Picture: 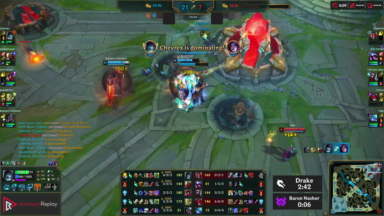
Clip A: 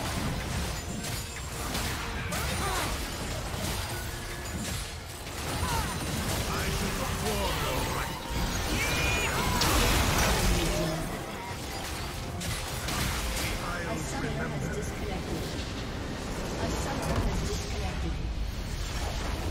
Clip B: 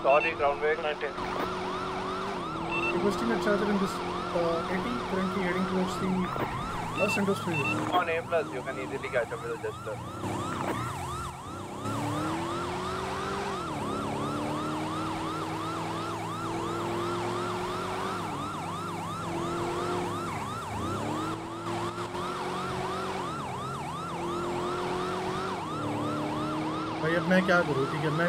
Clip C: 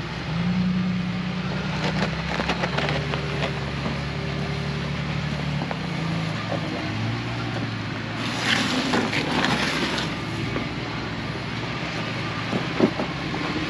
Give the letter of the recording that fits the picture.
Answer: A